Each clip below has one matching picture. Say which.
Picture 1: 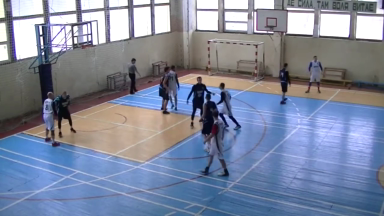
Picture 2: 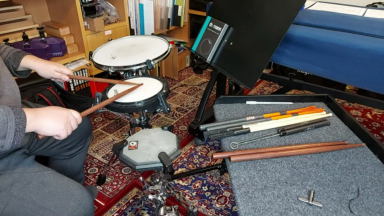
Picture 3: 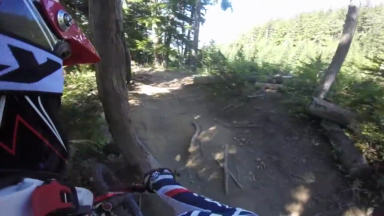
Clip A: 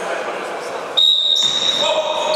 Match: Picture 1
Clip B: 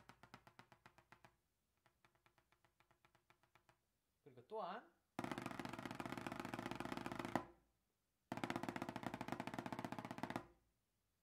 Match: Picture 2